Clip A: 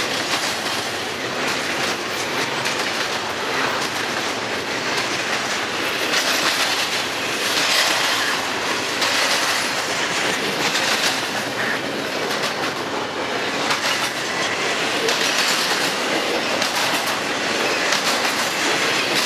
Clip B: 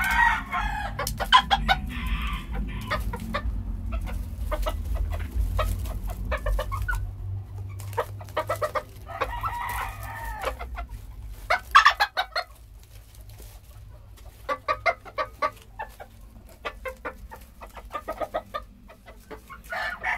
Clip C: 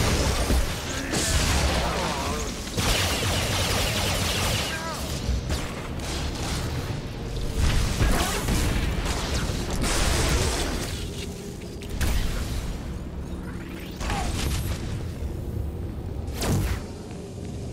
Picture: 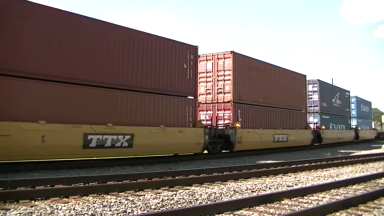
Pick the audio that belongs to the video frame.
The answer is A